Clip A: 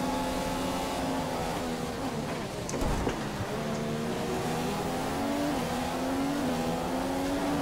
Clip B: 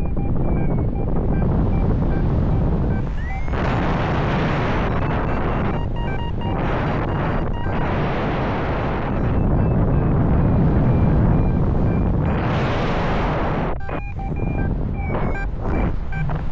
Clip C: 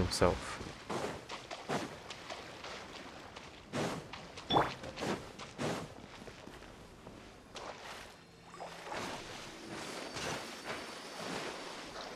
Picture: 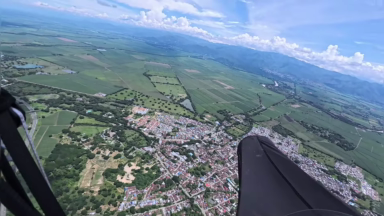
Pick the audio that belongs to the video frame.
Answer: B